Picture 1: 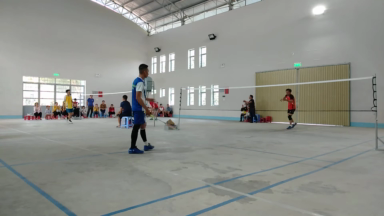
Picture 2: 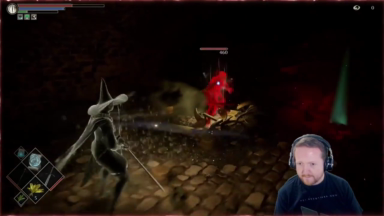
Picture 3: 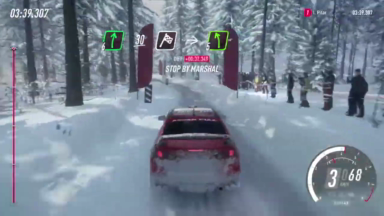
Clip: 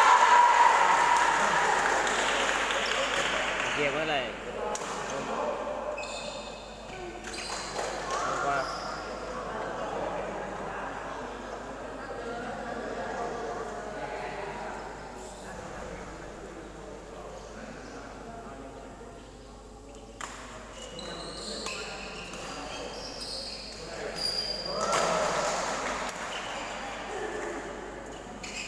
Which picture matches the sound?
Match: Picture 1